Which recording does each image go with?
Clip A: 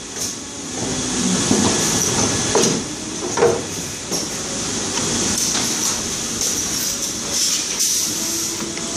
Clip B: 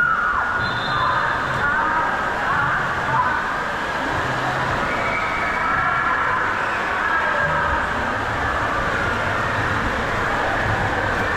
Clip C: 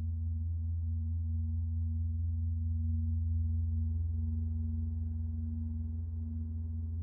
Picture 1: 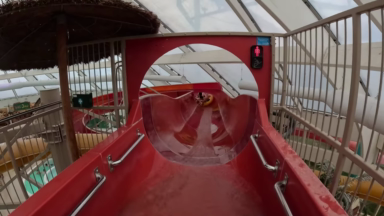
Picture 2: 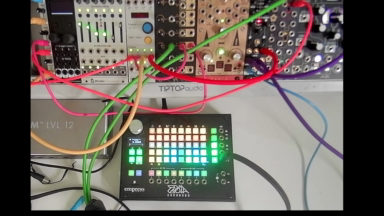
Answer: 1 B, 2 C